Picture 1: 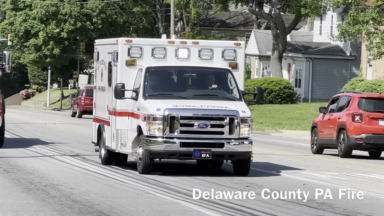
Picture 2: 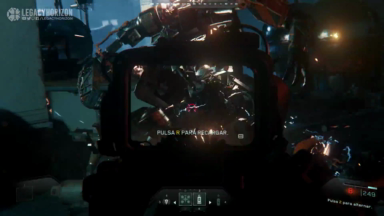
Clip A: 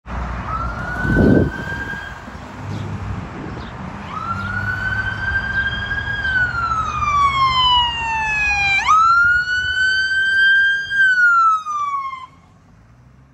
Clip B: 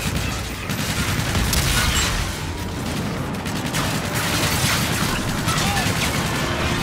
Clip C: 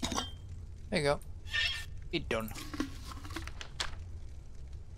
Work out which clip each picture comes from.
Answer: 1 A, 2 B